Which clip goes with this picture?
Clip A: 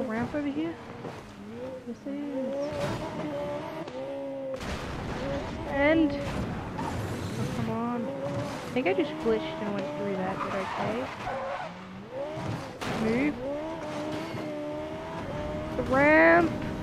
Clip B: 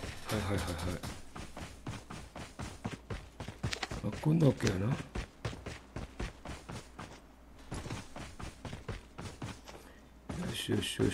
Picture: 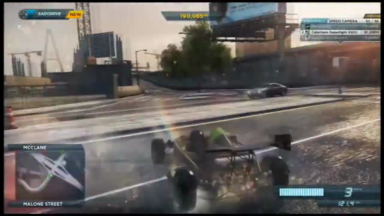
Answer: A